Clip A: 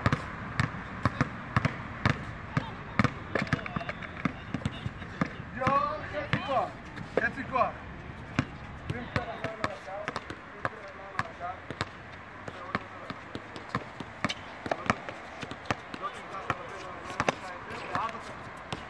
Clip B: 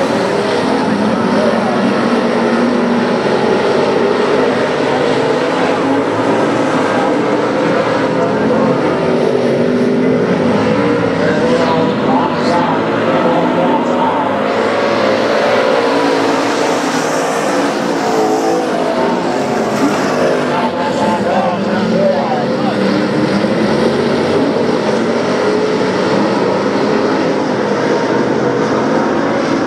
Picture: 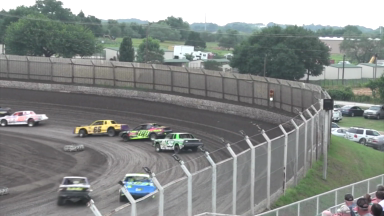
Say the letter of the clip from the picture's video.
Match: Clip B